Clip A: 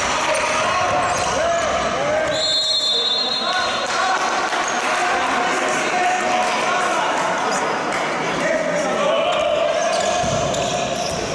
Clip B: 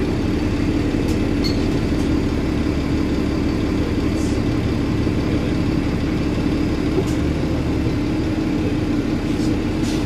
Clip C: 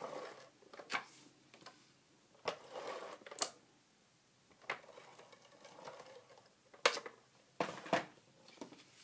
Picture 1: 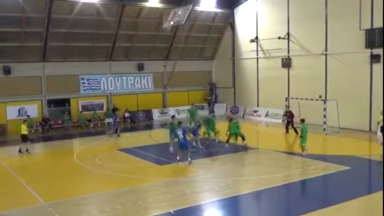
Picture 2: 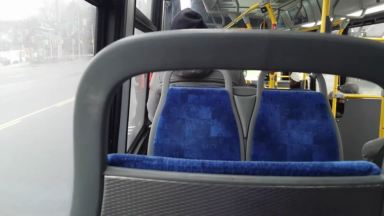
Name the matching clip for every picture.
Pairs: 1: A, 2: B